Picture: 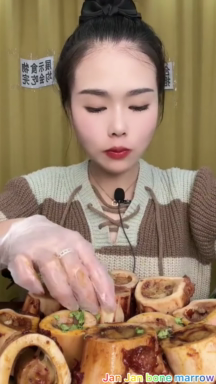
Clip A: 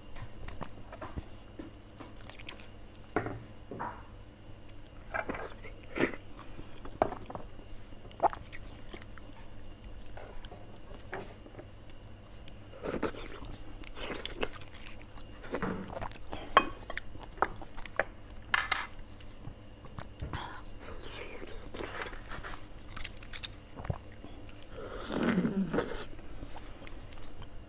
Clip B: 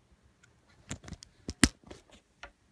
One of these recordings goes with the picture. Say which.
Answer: A